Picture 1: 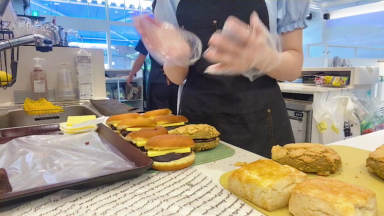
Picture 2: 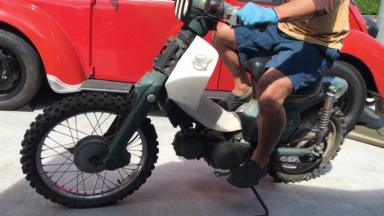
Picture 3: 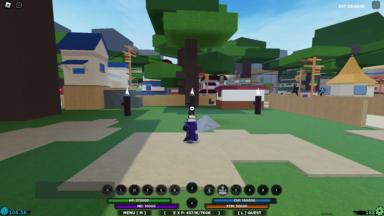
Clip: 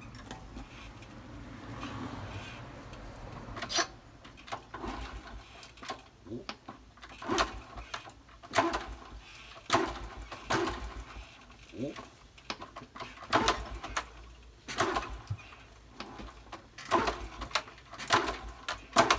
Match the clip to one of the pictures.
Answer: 2